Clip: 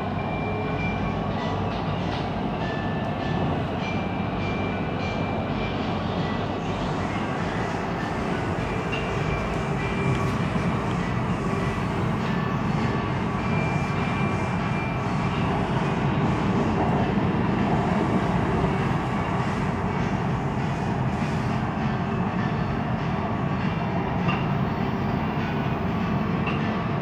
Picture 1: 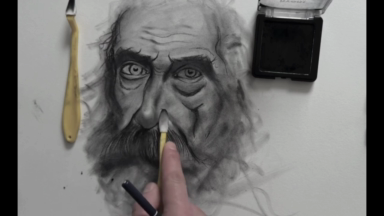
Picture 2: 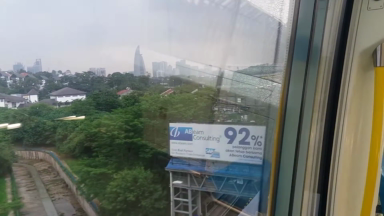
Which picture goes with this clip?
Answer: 2